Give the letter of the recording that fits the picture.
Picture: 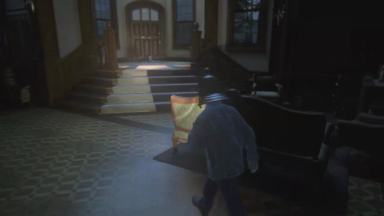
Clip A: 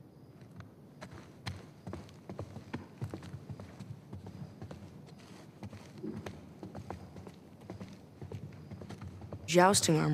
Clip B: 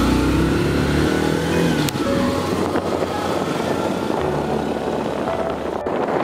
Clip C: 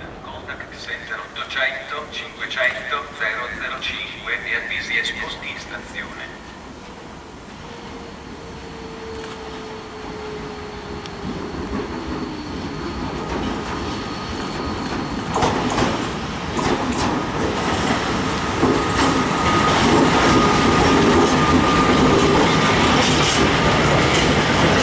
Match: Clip A